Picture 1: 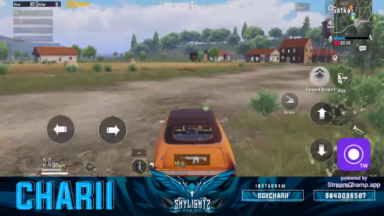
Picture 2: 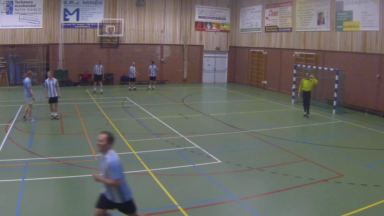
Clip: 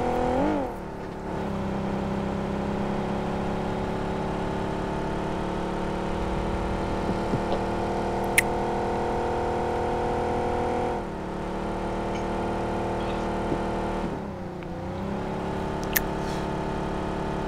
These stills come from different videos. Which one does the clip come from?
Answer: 1